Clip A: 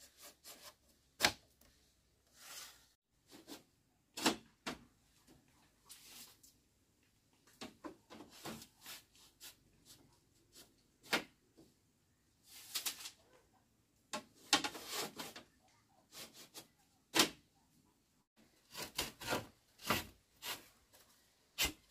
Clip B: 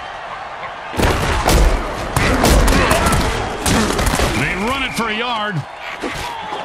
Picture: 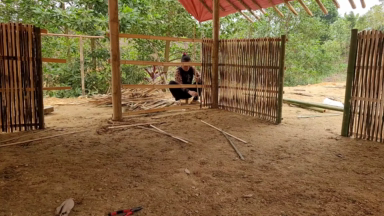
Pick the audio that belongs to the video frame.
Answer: A